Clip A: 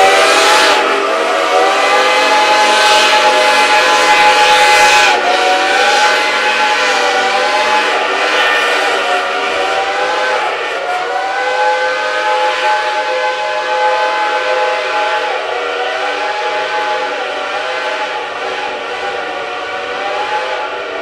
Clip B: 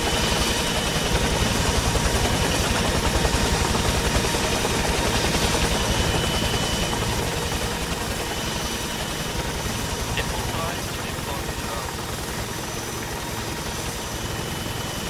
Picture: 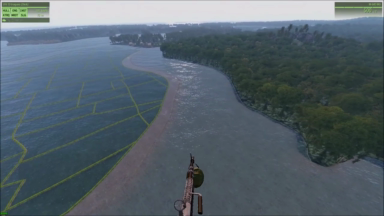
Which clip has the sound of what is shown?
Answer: B